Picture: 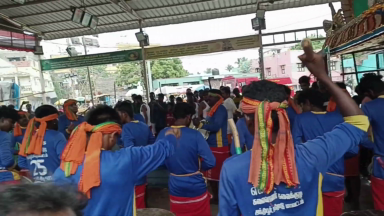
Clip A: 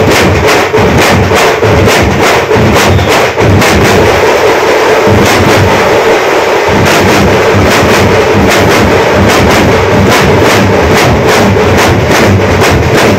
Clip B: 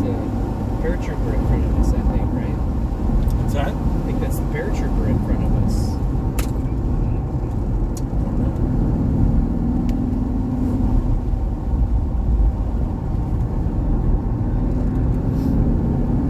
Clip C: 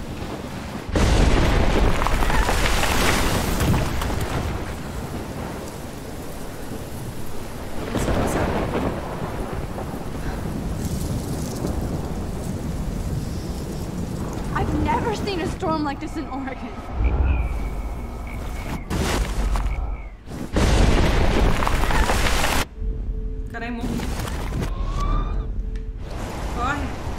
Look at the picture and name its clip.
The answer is A